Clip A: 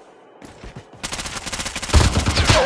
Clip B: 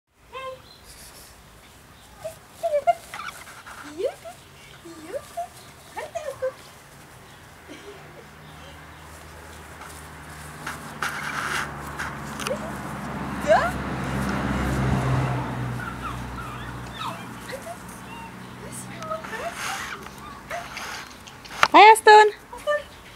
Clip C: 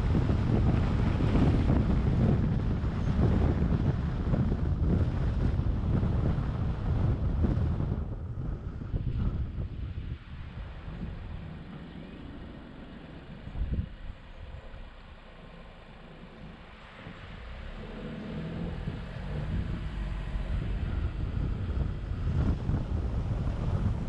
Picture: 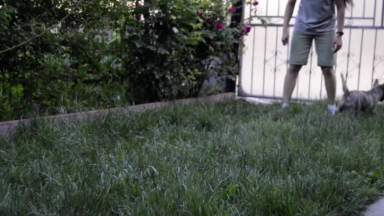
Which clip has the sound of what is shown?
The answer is B